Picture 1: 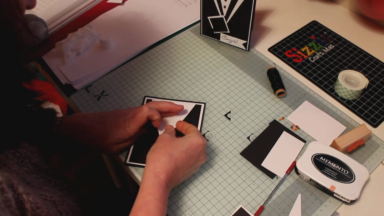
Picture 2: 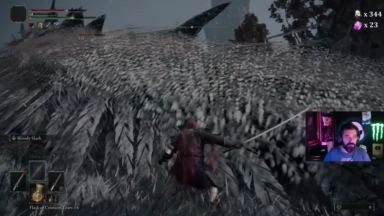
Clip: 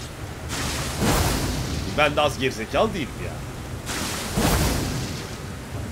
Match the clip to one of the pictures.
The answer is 2